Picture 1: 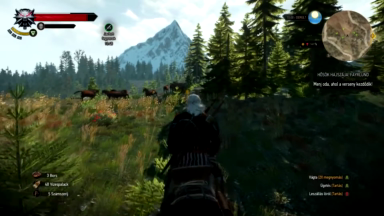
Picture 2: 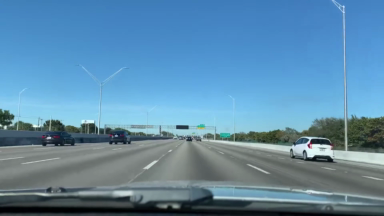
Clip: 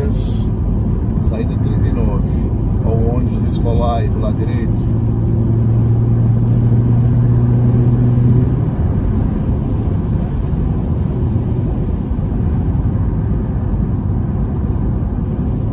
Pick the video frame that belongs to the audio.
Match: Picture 2